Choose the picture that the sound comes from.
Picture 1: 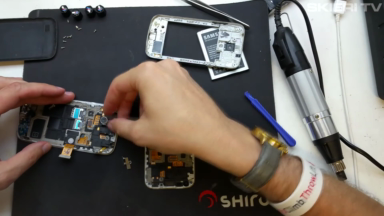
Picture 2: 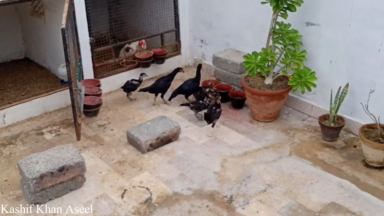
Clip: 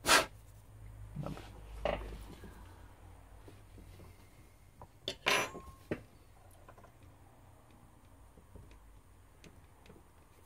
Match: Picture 1